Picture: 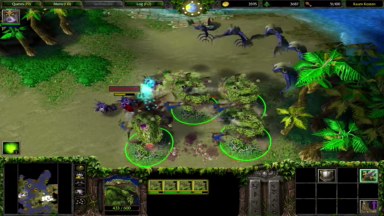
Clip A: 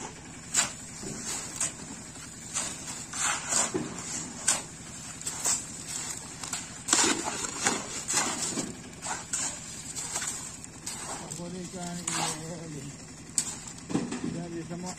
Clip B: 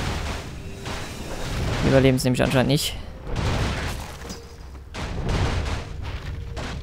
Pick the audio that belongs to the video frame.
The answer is B